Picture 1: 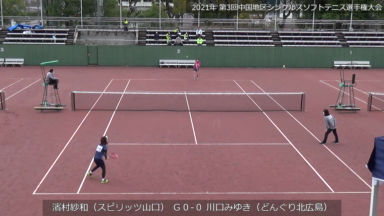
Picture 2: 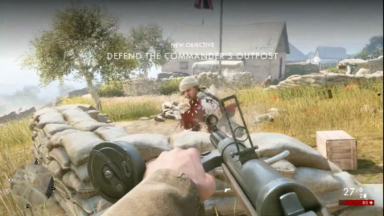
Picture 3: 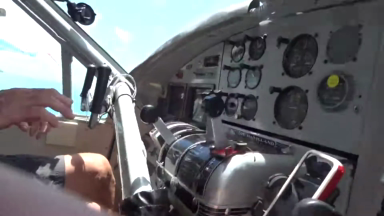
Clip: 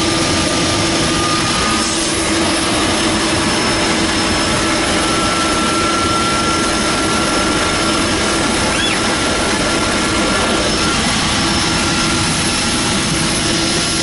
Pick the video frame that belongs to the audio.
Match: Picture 3